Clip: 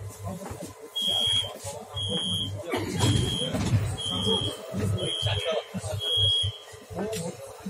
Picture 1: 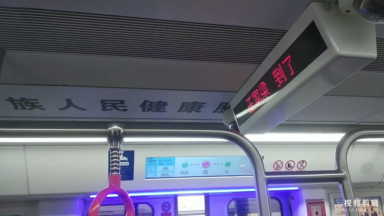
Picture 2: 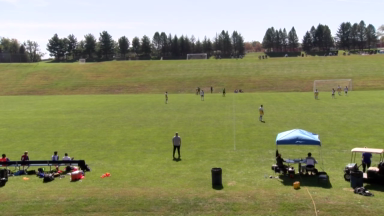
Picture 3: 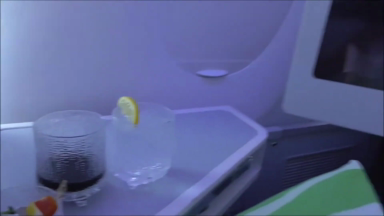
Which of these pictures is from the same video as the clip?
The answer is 1